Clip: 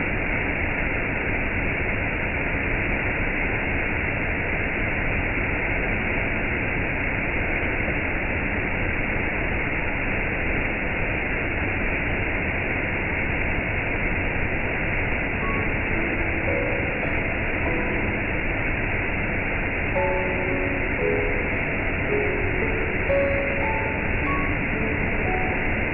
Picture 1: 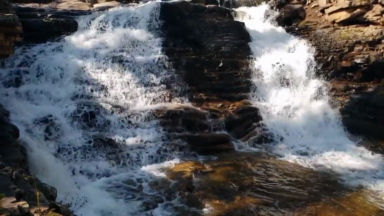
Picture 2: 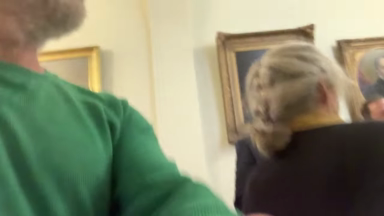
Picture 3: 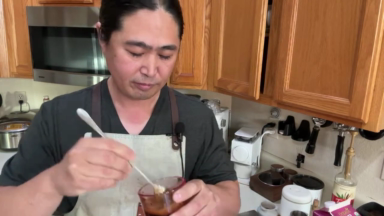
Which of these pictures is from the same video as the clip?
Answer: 1